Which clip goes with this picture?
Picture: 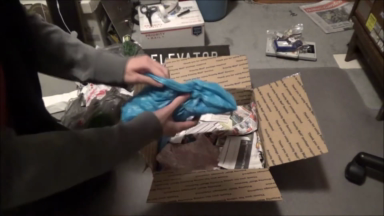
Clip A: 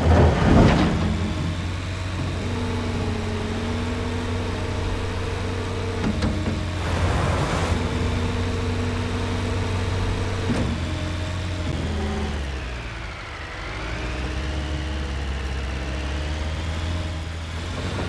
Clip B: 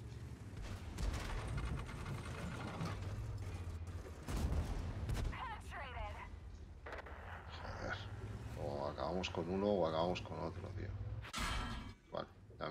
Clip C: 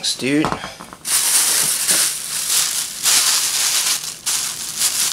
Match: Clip C